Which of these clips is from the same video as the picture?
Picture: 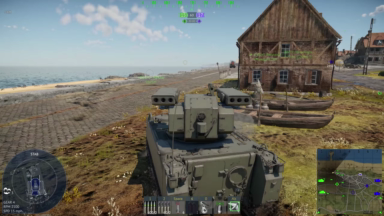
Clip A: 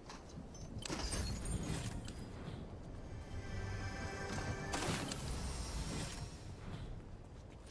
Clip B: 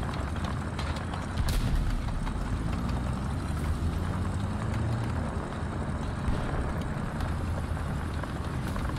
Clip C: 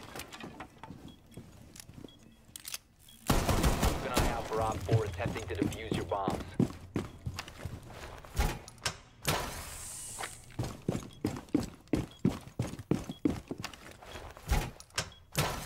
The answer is B